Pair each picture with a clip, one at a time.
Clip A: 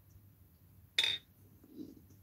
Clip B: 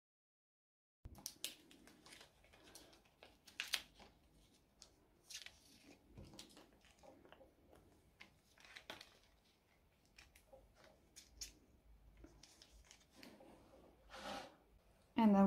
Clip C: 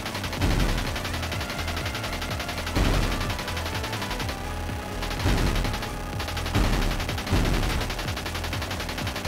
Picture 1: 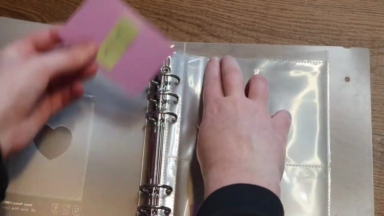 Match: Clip B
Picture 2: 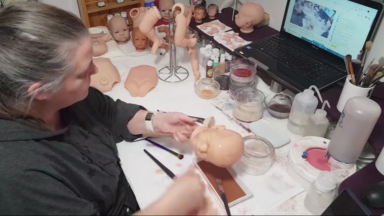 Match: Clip A